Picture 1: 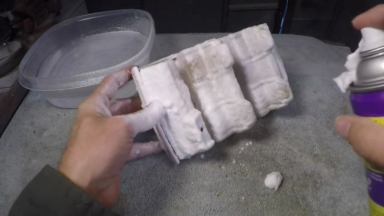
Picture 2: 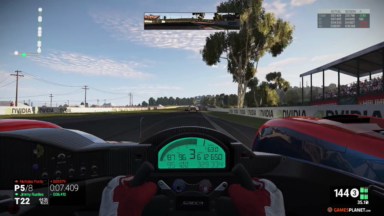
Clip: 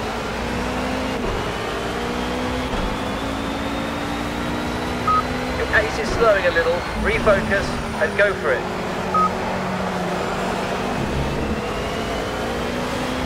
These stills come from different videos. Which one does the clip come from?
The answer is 2